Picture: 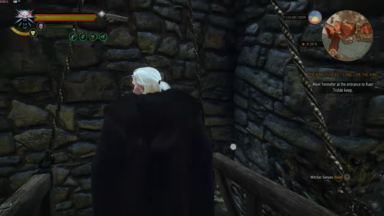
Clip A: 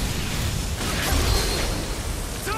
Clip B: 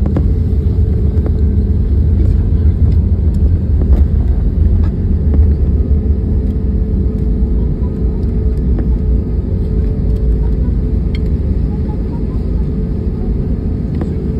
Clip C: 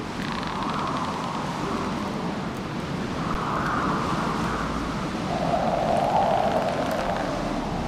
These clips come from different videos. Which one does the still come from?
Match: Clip C